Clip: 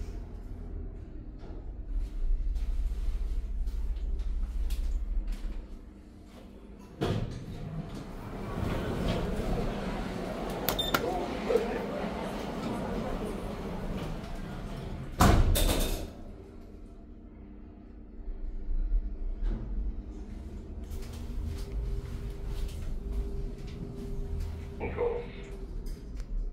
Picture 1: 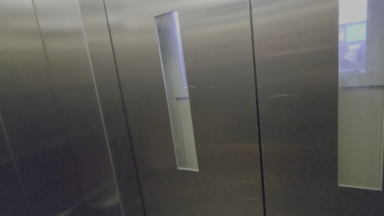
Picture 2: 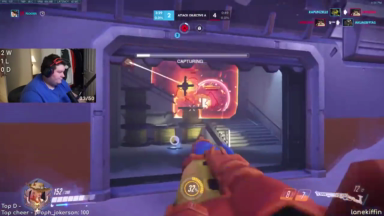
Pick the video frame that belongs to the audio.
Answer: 1